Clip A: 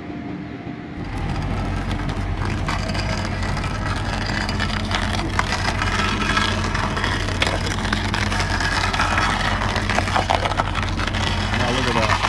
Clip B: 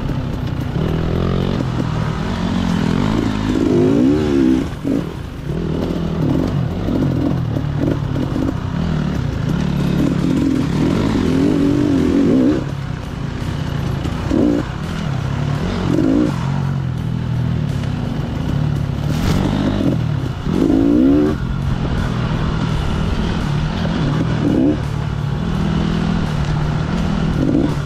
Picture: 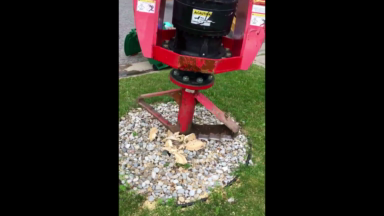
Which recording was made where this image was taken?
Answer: A